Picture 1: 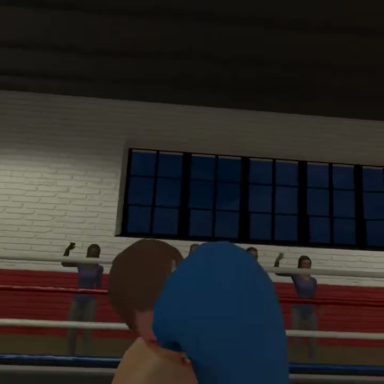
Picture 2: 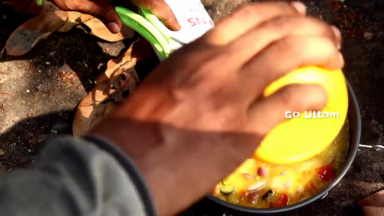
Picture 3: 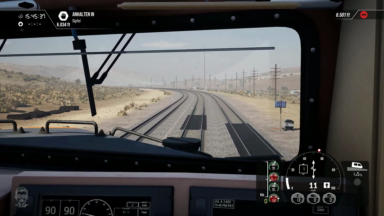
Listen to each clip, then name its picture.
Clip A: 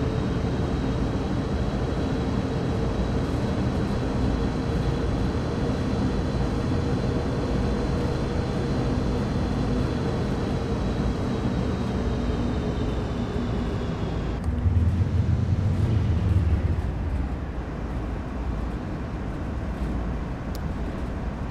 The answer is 3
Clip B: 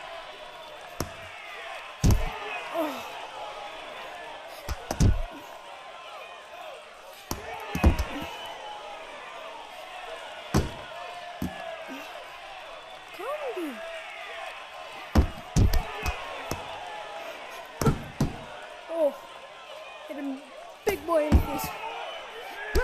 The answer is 1